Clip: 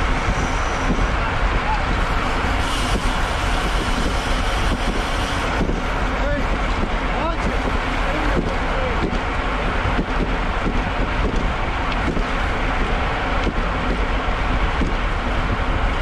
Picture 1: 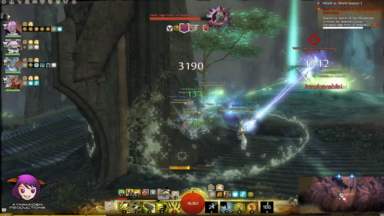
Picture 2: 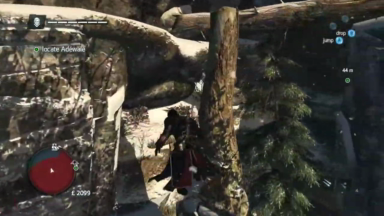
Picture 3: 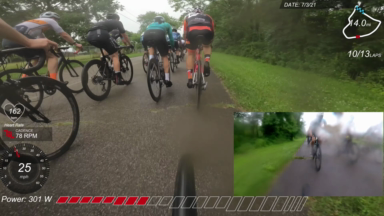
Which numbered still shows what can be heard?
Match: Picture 3